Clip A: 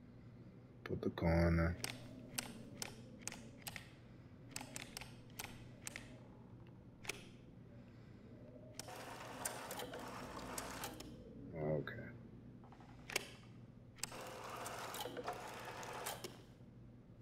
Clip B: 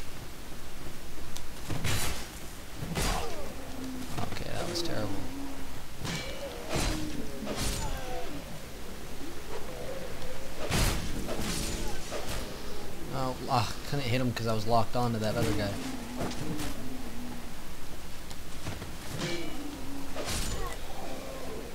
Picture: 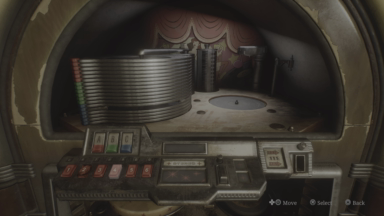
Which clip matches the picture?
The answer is A